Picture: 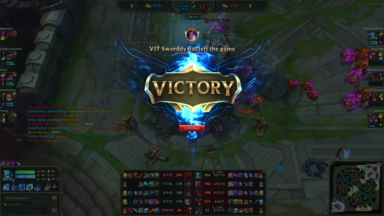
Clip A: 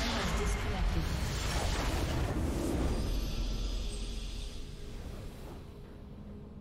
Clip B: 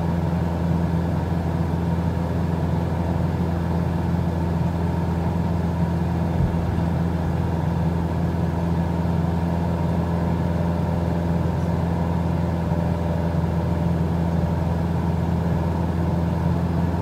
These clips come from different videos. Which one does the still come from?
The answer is A